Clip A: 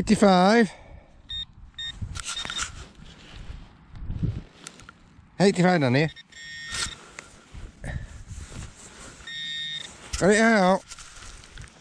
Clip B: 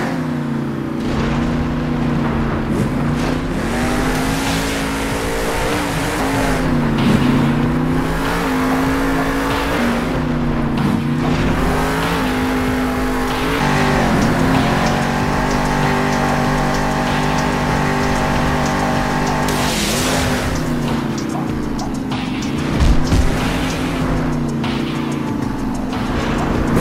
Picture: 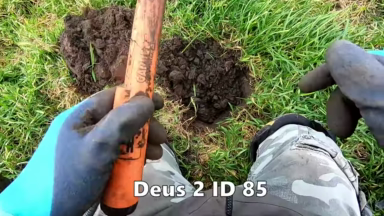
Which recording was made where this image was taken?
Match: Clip A